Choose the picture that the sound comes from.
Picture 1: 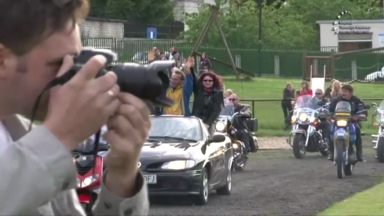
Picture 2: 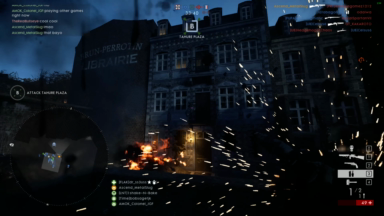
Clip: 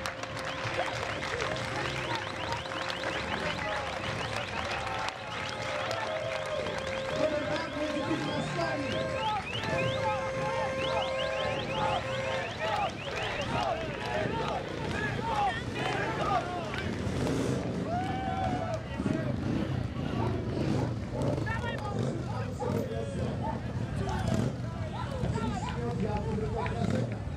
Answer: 1